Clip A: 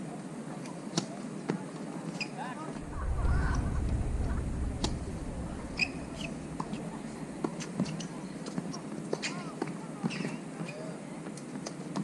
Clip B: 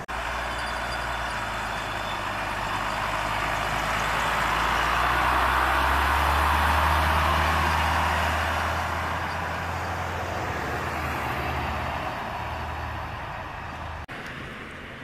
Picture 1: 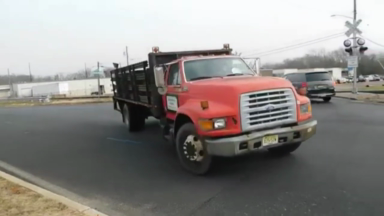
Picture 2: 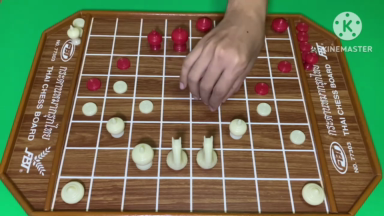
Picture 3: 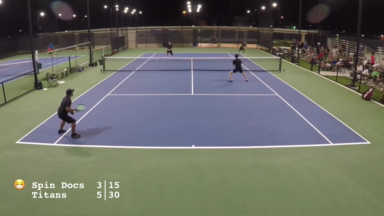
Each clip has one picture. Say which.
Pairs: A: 3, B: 1